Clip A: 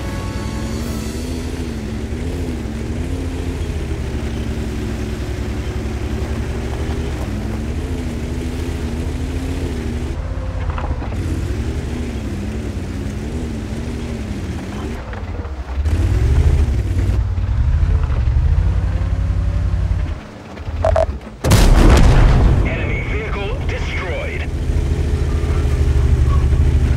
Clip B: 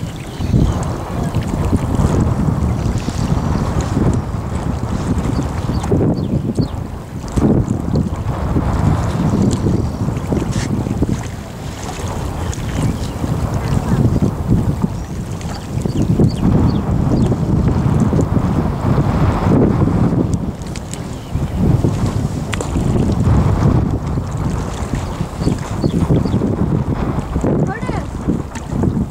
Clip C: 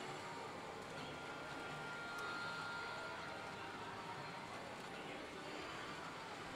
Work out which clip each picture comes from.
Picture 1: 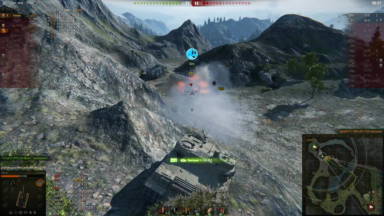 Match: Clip A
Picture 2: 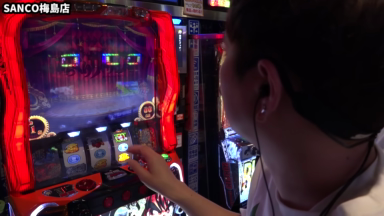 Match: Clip C